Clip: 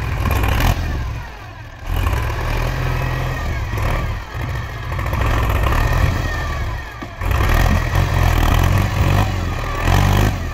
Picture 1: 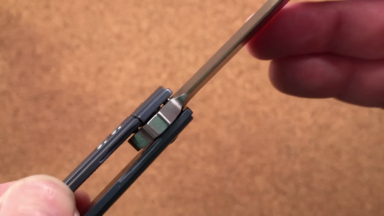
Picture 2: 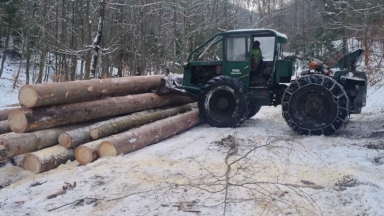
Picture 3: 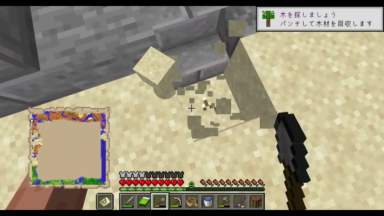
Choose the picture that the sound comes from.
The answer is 2